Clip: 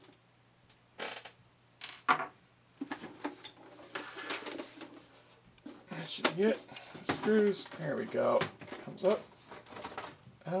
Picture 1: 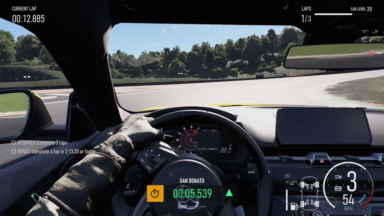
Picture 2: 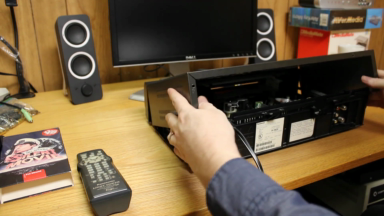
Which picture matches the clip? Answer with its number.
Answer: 2